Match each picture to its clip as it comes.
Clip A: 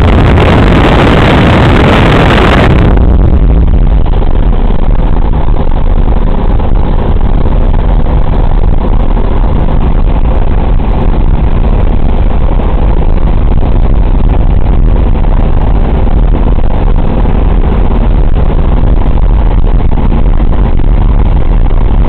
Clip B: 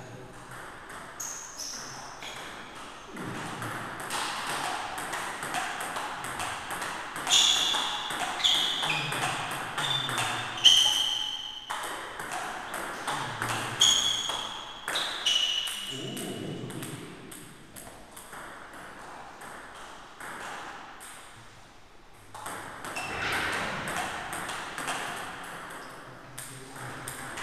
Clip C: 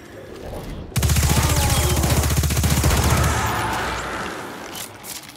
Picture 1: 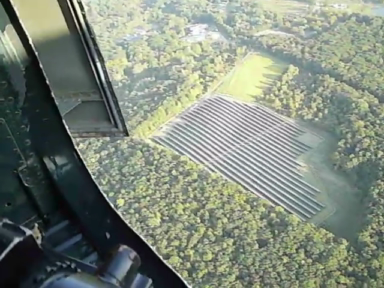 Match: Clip A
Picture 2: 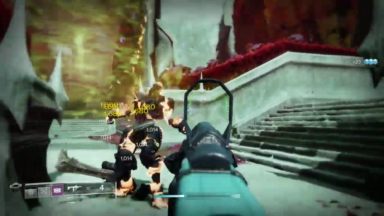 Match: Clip C